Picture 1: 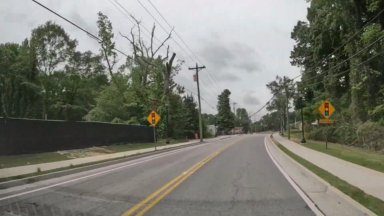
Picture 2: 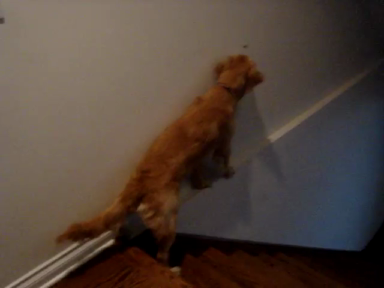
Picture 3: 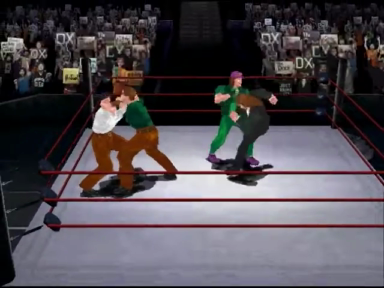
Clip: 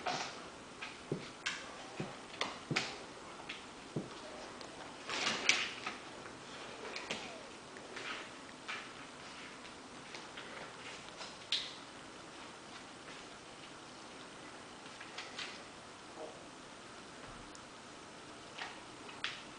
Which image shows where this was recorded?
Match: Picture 2